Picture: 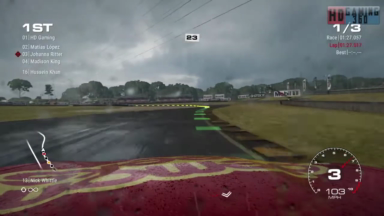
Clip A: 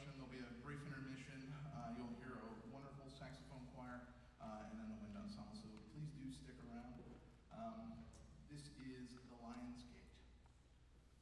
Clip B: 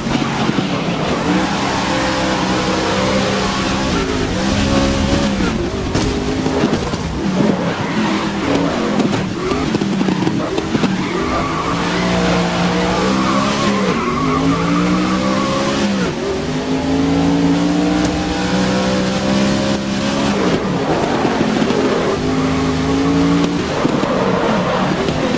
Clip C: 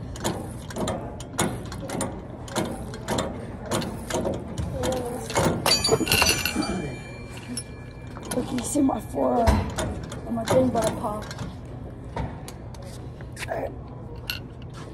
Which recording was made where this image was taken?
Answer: B